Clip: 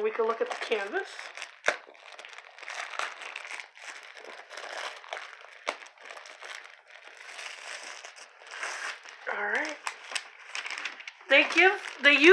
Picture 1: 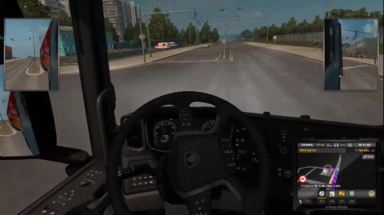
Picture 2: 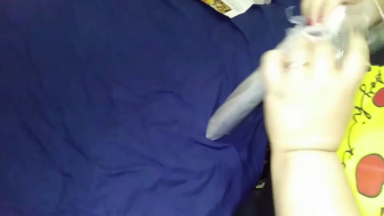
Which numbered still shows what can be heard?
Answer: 2